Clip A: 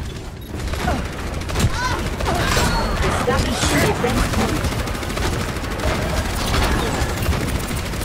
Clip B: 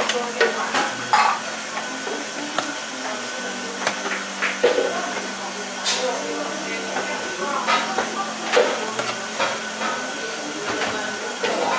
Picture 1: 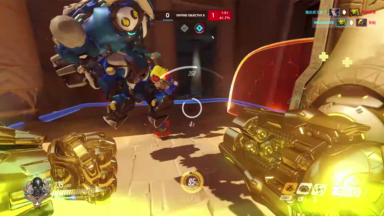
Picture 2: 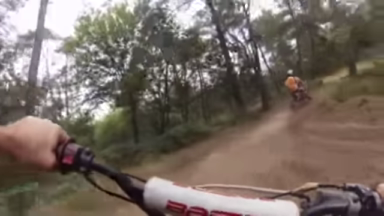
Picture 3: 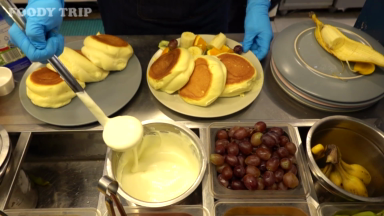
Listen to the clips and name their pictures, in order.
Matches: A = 1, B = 3